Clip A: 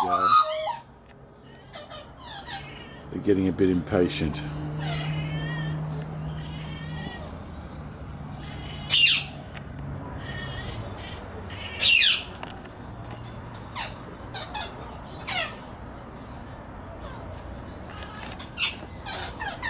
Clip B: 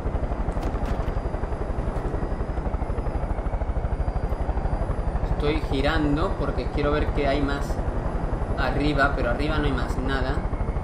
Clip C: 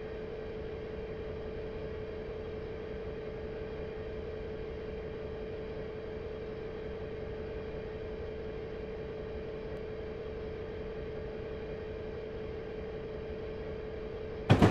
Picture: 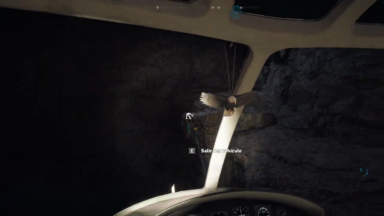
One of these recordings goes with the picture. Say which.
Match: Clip B